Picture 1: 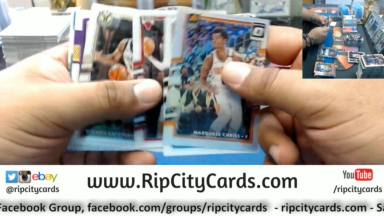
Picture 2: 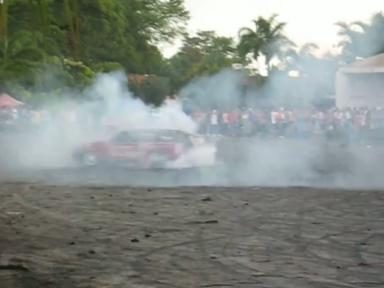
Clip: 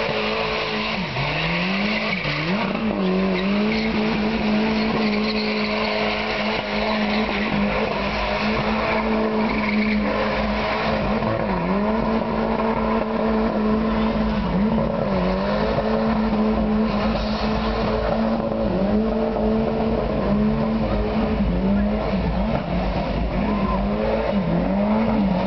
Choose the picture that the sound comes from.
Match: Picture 2